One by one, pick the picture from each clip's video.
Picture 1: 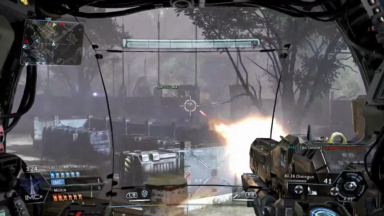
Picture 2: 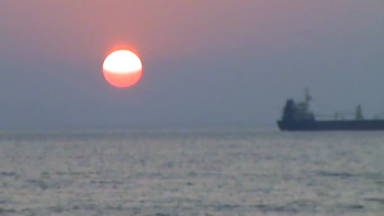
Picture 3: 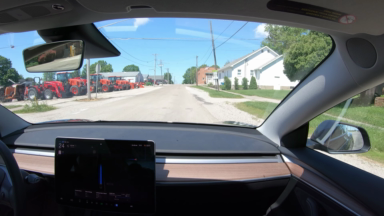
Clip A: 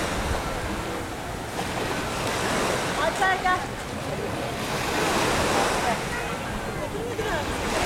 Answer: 2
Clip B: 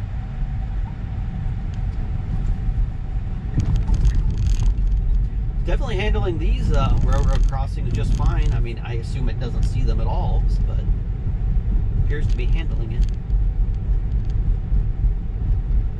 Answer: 3